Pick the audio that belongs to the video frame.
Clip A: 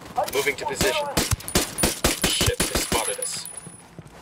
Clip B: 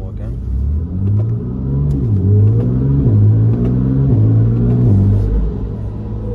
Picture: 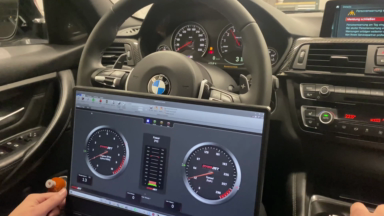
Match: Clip B